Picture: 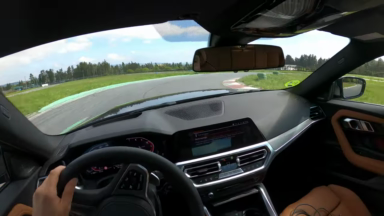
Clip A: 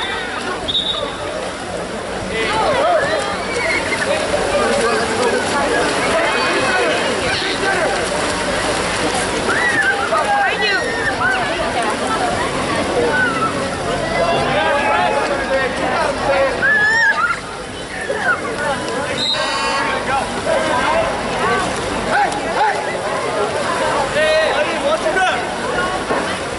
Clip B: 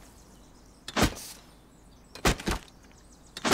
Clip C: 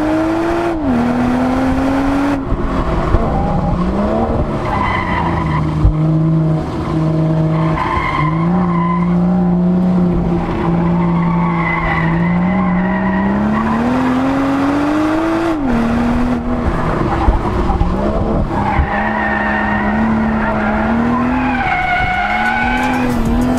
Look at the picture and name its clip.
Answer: C